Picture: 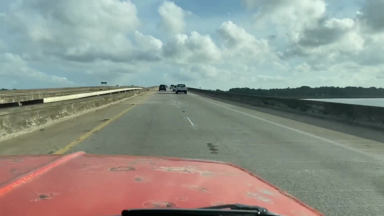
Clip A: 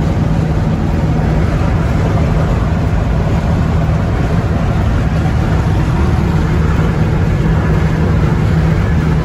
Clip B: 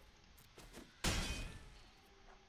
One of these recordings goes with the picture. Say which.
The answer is A